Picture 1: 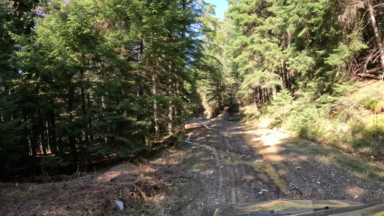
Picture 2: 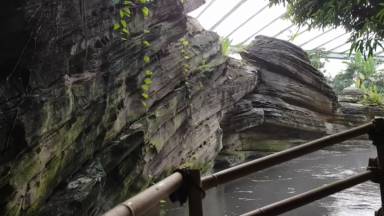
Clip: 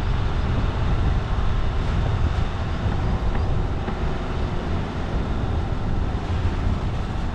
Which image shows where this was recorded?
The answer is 1